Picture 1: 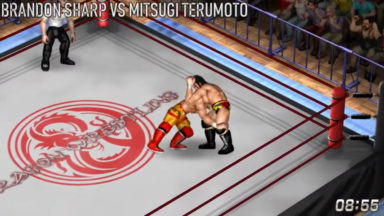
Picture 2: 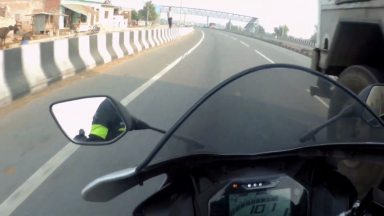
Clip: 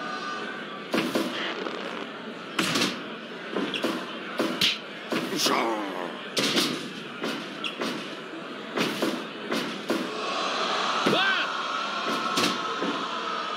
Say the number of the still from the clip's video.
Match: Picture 1